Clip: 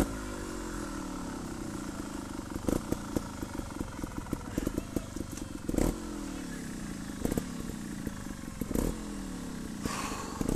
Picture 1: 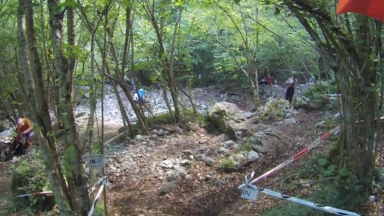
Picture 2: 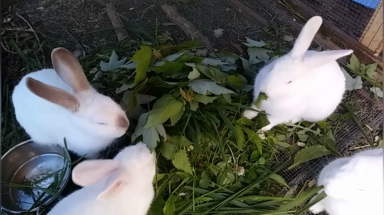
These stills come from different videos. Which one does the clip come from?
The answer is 1